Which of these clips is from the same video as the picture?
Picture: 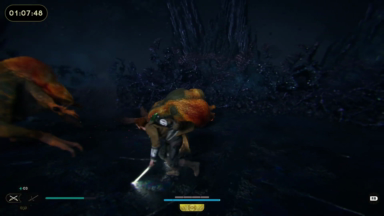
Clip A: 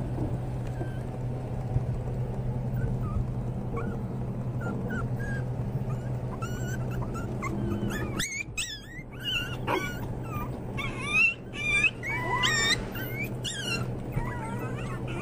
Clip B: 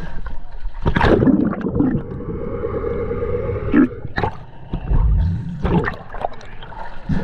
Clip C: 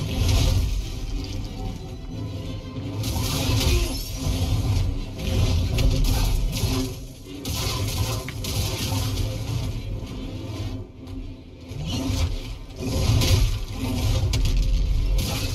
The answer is C